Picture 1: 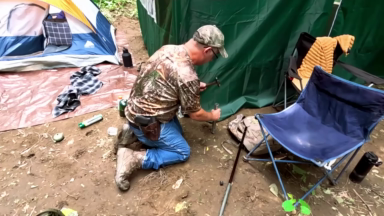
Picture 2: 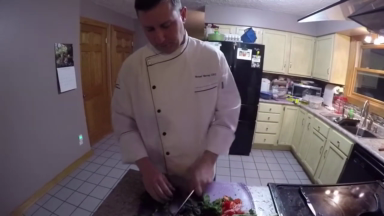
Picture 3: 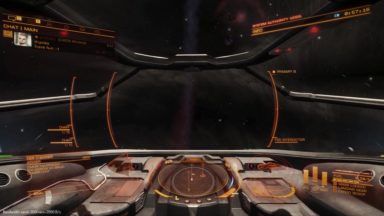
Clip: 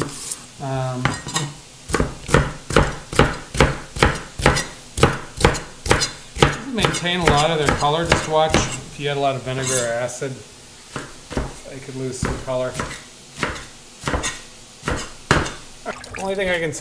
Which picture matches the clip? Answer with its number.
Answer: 2